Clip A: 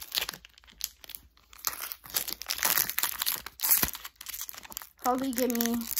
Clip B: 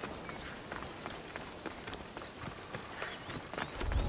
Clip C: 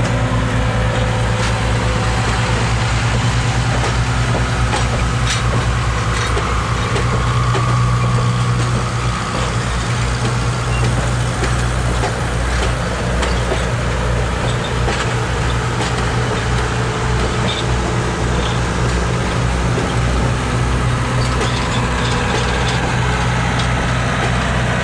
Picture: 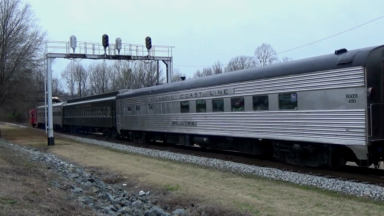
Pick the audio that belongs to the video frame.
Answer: C